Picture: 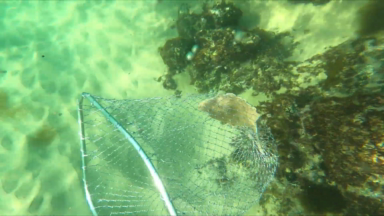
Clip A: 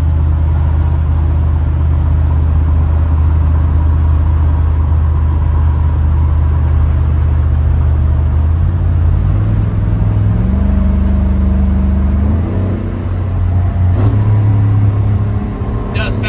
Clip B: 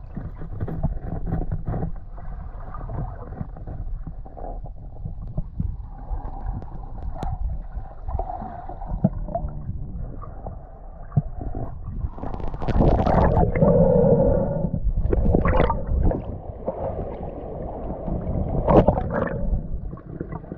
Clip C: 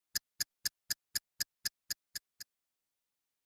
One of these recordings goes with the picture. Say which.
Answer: B